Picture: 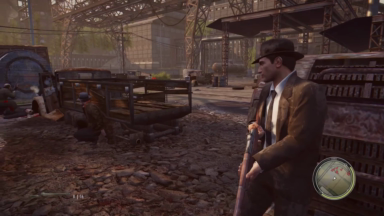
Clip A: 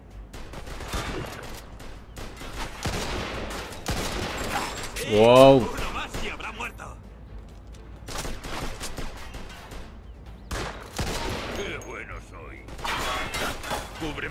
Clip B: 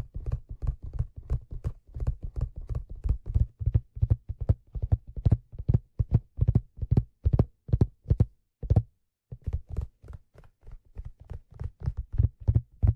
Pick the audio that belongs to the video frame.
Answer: A